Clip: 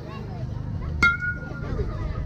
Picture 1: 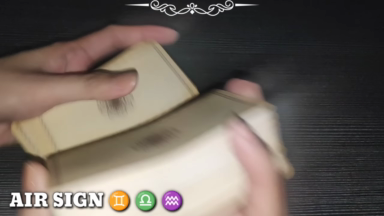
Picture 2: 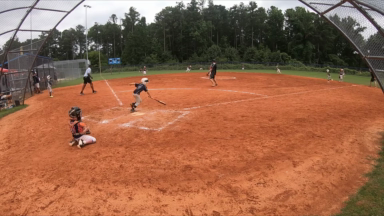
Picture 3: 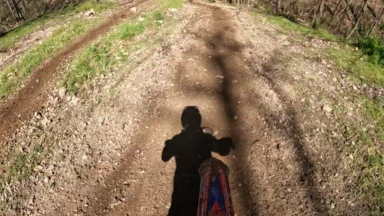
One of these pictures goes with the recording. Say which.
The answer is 2